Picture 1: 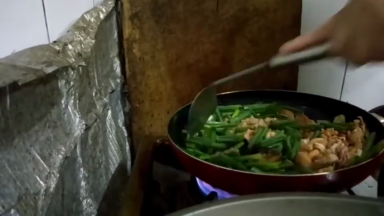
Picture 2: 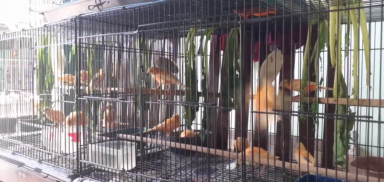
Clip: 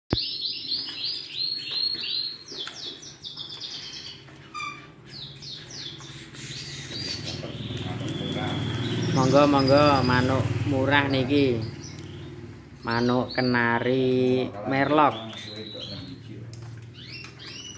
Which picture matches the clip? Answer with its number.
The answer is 2